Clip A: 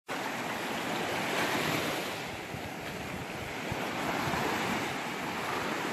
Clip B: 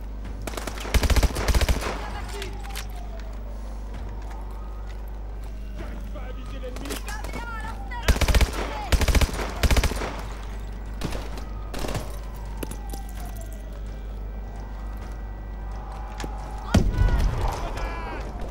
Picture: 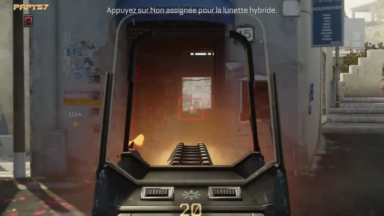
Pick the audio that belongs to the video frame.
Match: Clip B